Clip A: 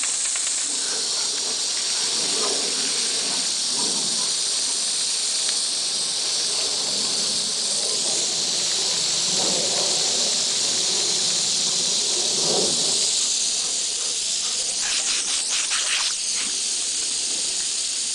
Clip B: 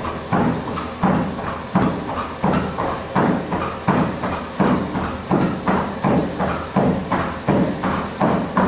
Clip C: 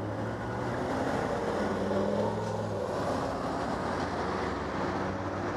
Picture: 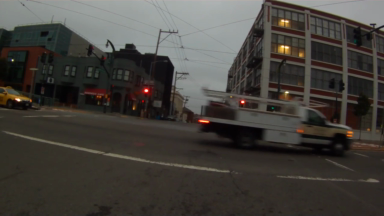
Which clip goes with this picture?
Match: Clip C